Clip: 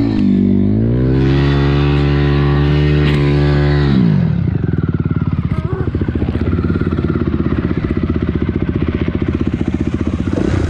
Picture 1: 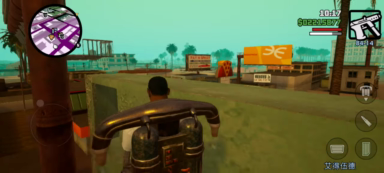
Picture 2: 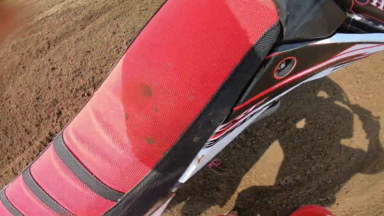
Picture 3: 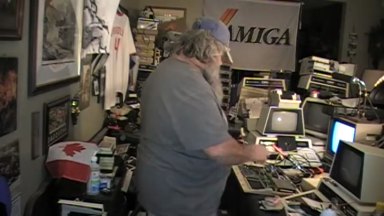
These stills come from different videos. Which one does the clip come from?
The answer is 2